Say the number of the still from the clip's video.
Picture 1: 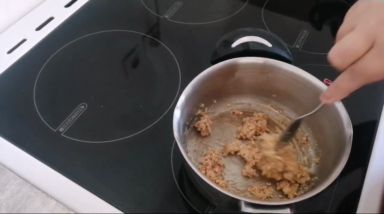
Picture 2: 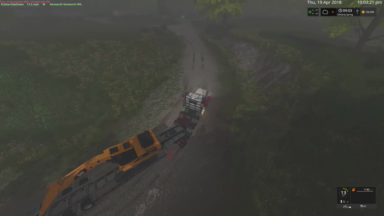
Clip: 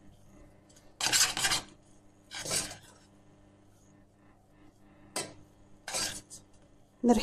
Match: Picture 1